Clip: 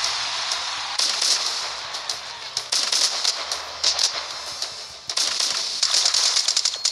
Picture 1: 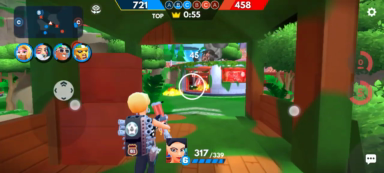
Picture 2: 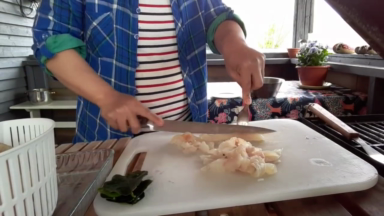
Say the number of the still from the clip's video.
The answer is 1